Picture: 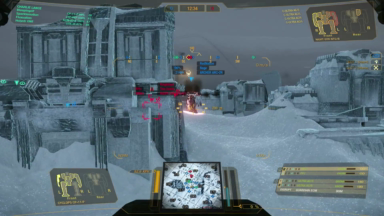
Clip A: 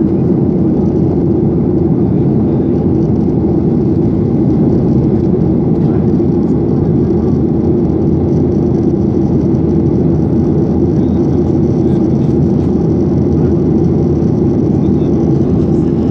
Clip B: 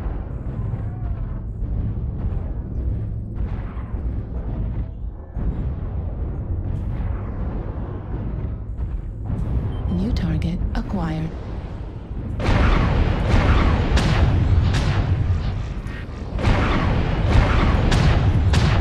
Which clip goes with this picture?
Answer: B